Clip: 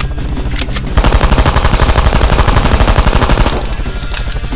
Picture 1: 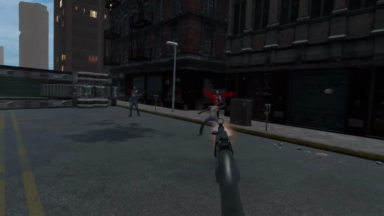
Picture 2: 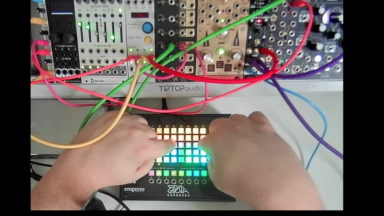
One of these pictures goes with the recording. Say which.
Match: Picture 1